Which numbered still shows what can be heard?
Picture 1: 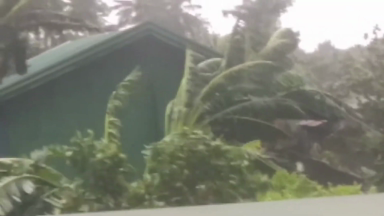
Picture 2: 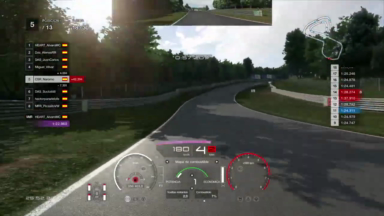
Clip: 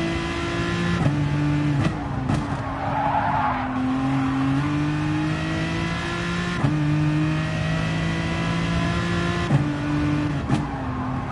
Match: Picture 2